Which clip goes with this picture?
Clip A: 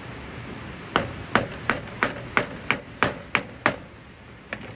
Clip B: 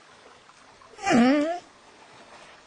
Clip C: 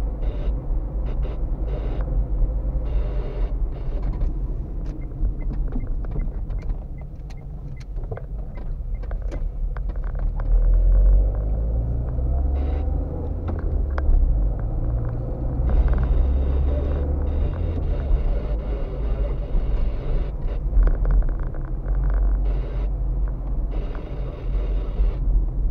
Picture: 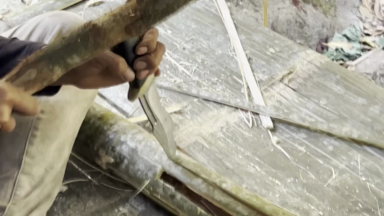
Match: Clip A